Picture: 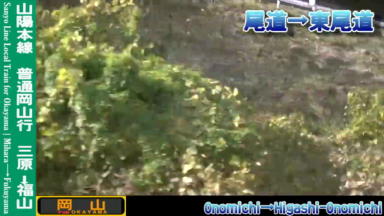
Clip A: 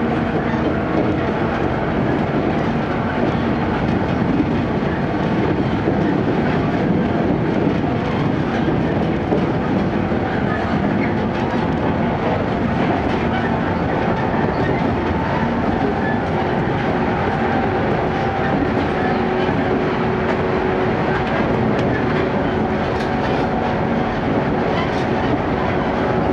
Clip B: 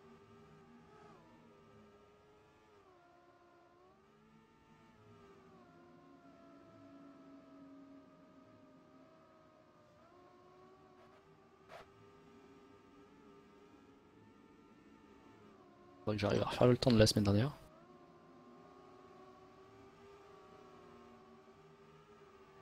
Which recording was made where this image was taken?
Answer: A